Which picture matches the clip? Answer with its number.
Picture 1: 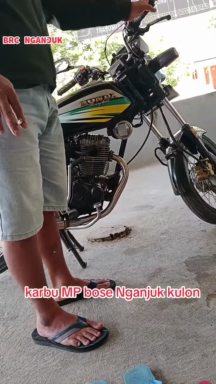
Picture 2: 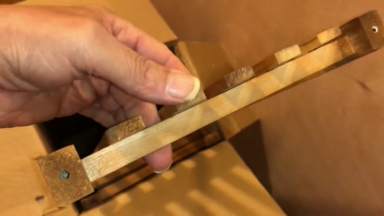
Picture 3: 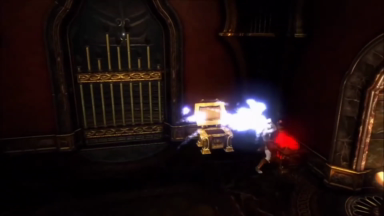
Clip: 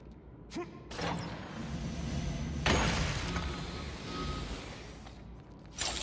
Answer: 3